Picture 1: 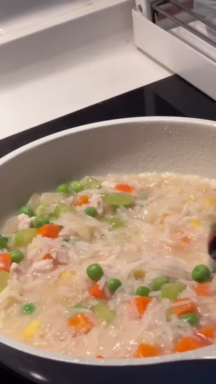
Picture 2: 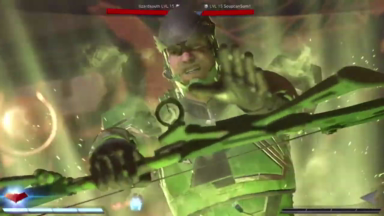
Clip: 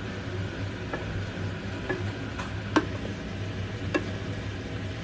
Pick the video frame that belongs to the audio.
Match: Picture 1